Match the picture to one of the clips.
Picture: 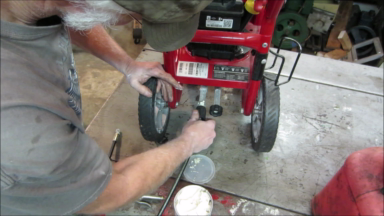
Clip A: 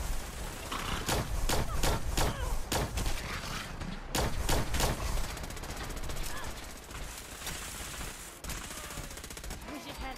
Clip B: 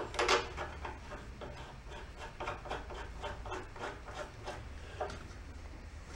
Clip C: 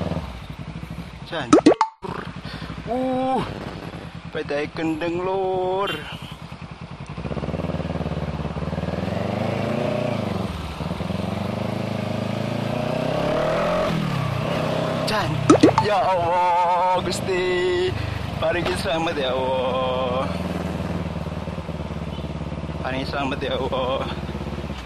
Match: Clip B